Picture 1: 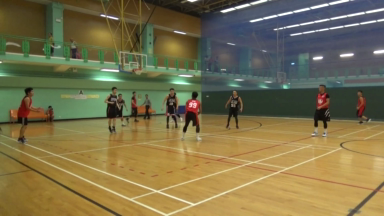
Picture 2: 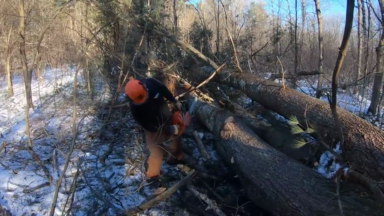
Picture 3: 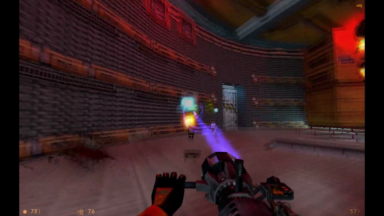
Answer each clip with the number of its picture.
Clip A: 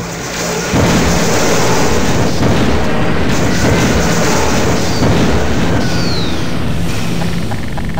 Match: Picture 3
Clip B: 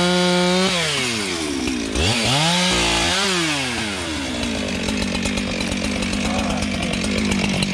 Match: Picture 2